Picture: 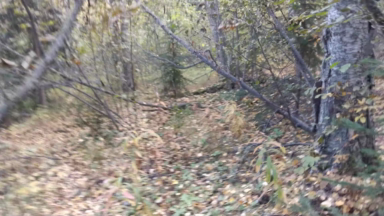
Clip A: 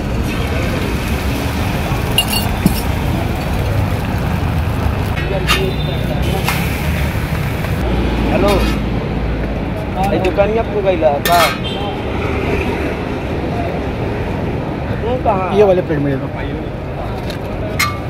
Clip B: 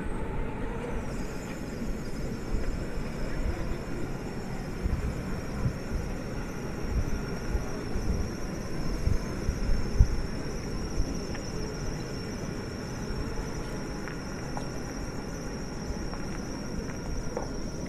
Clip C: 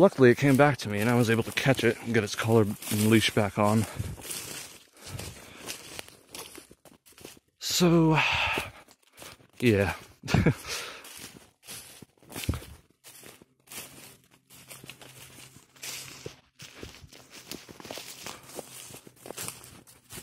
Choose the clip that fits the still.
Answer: C